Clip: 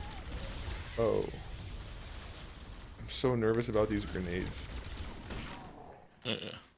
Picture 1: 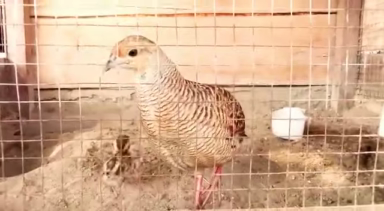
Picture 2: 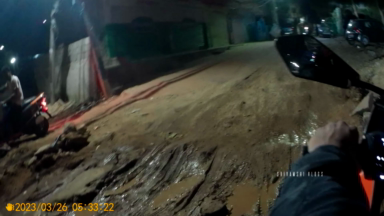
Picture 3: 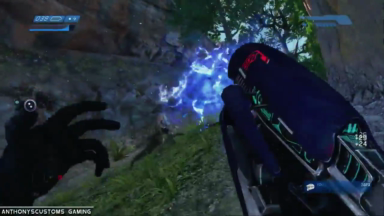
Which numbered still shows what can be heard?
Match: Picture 3